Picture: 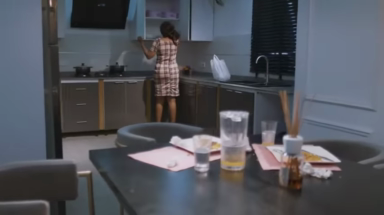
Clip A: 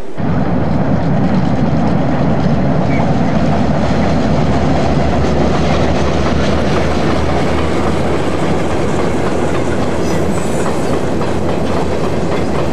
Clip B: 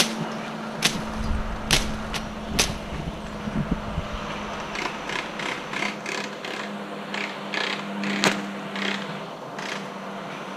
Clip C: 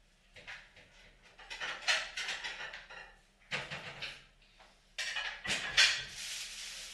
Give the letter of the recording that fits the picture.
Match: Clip C